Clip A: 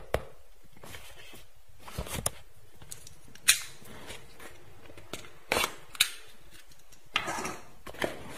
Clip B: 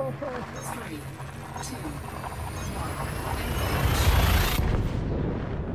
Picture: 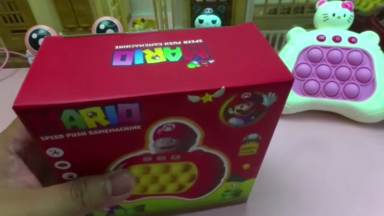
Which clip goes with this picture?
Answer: A